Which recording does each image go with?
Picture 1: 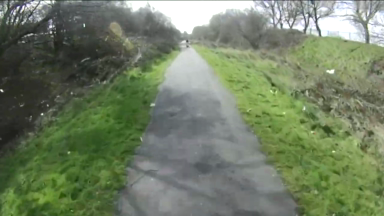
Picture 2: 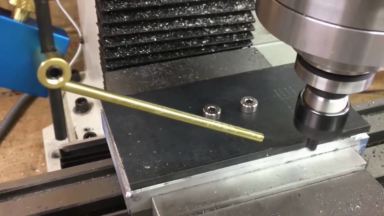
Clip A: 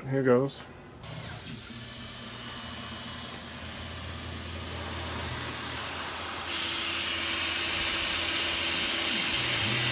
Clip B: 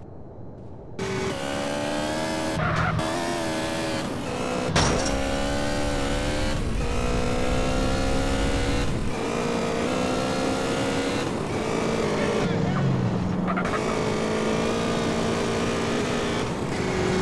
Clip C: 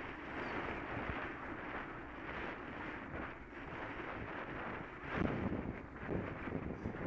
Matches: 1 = C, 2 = A